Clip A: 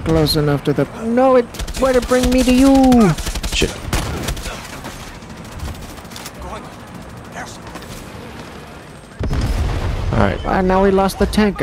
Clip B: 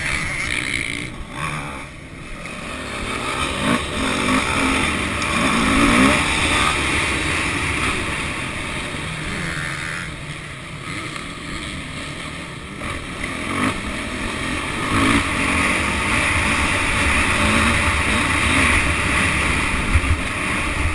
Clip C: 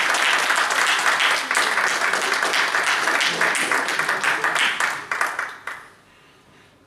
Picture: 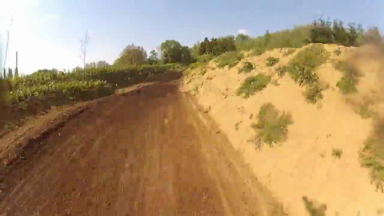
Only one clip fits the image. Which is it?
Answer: B